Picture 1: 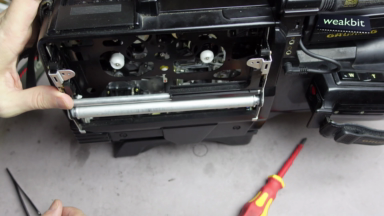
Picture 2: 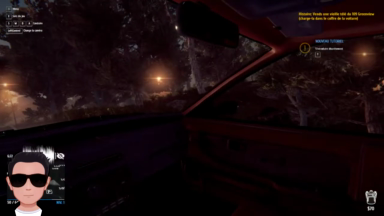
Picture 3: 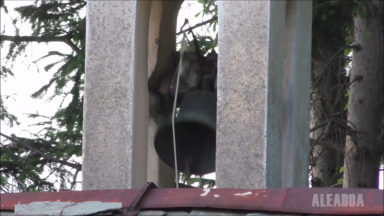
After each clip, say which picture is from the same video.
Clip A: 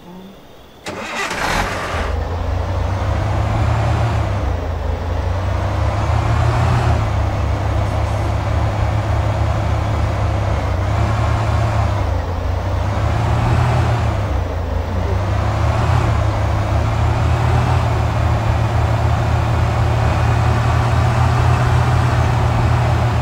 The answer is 2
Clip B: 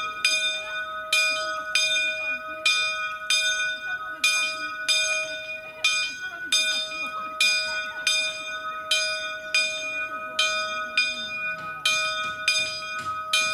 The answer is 3